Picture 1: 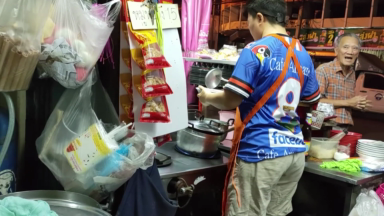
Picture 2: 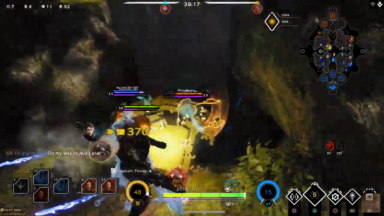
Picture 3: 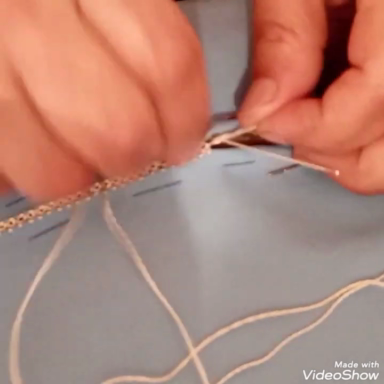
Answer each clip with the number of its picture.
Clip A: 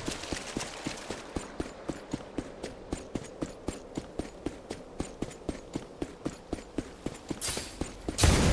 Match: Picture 2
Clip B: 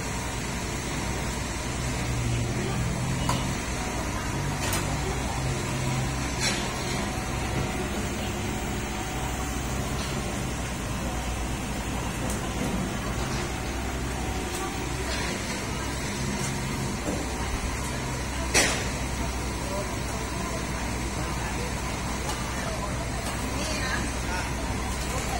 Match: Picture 1